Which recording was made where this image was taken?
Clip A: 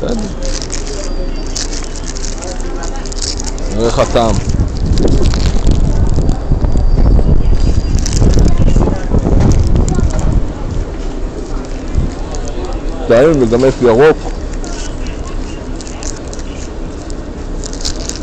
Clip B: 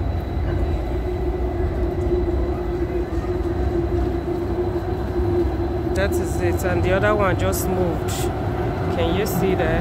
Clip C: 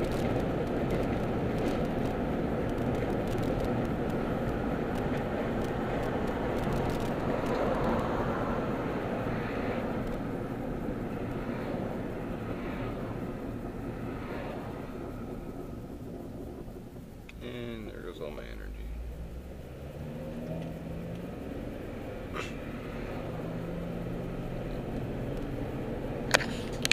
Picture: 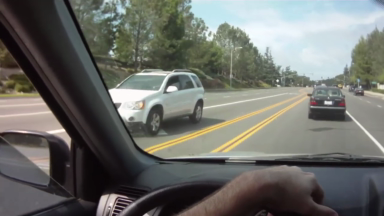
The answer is C